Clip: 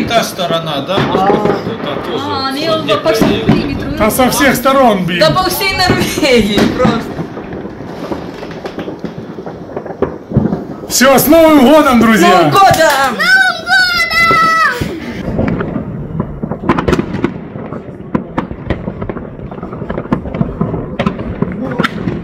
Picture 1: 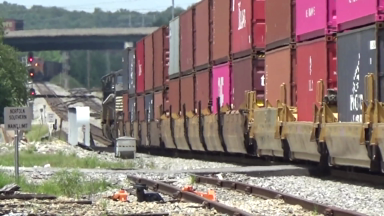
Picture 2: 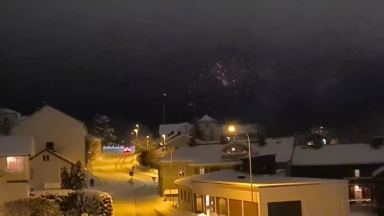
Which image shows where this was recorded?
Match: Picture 2